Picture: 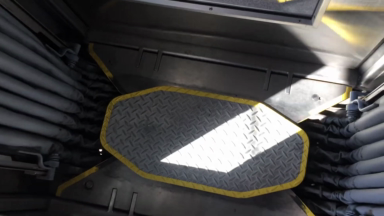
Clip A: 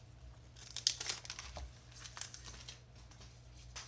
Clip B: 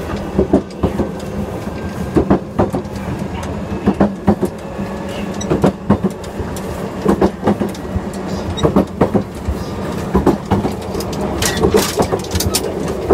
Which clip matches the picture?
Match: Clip B